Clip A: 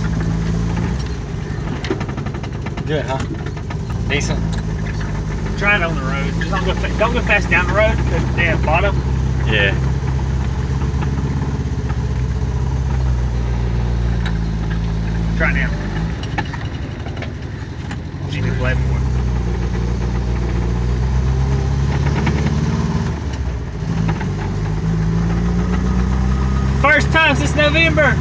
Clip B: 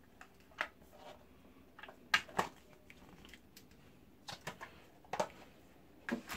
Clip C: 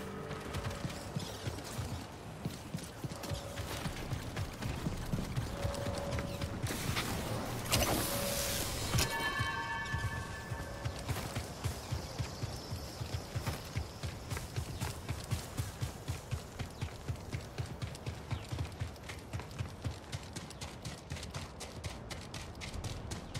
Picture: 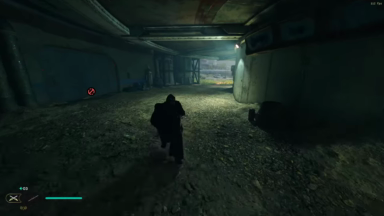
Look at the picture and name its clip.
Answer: C